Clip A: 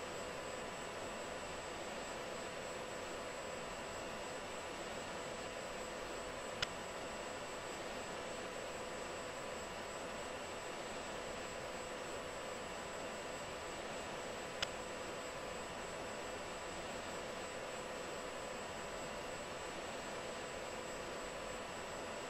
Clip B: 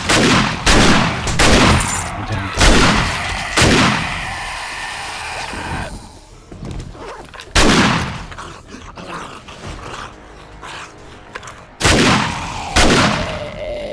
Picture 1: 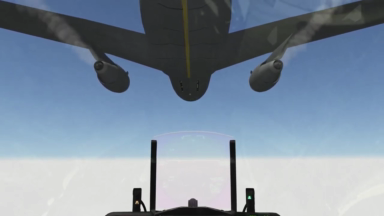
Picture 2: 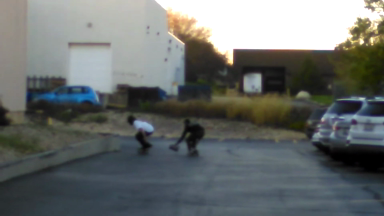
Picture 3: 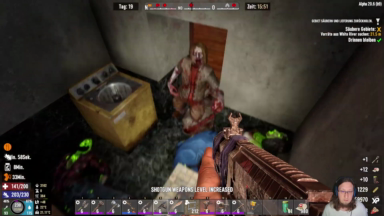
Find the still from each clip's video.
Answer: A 1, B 3